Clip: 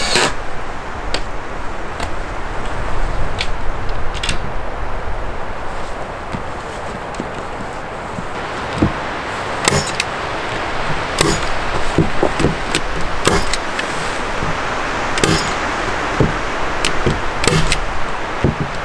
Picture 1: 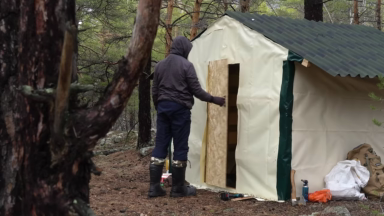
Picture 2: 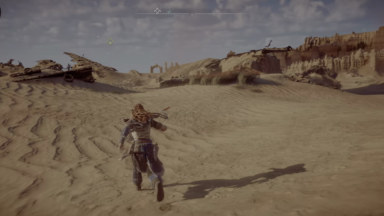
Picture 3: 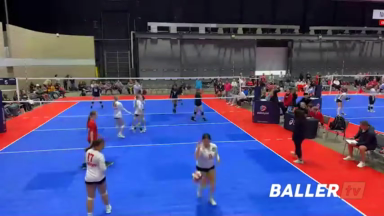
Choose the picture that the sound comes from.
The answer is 1